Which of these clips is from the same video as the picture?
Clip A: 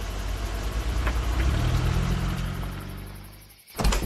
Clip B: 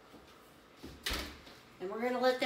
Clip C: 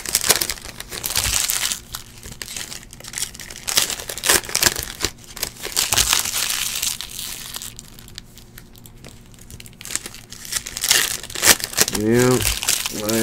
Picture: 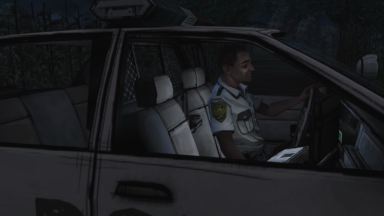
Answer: A